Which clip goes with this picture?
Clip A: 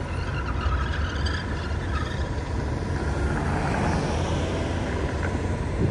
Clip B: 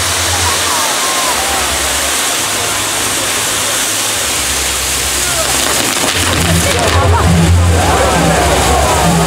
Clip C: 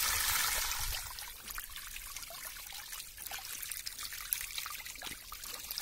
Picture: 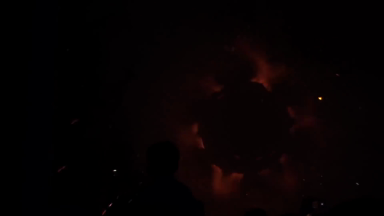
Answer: B